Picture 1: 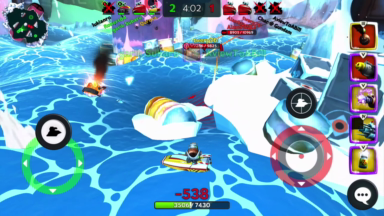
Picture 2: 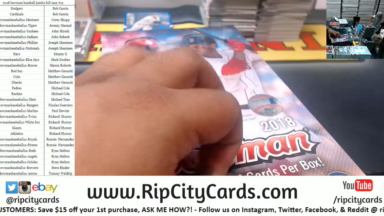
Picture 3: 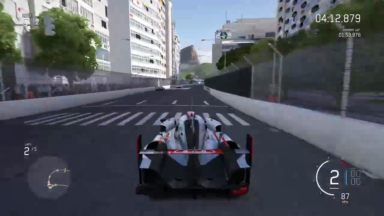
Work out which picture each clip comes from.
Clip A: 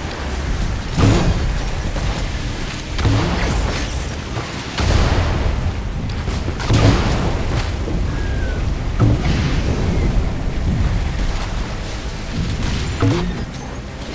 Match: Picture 1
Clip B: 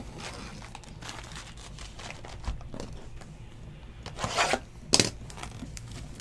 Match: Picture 2